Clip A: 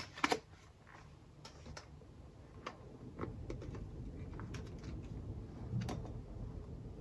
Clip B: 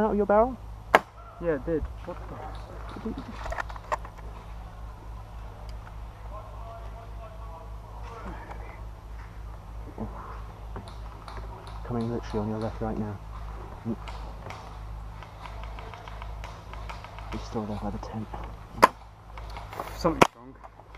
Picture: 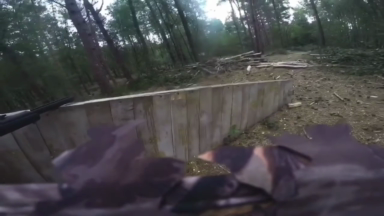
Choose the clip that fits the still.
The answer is B